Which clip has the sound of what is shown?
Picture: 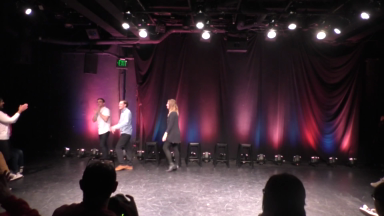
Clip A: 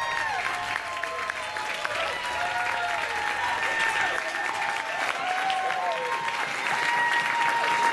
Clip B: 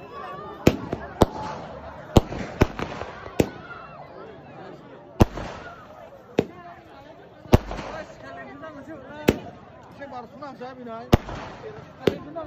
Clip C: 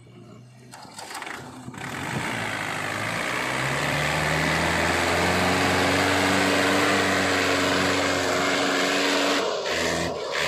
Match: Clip A